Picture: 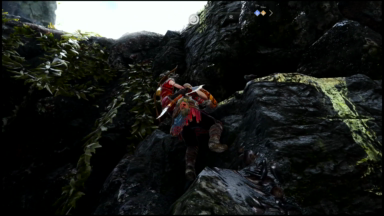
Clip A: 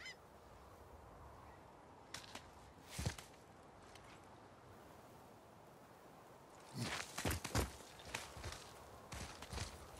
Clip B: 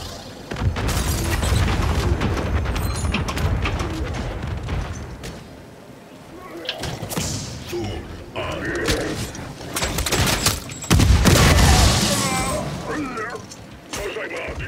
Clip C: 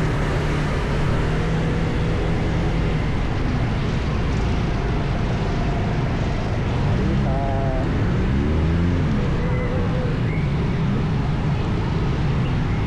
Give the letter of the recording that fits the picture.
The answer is A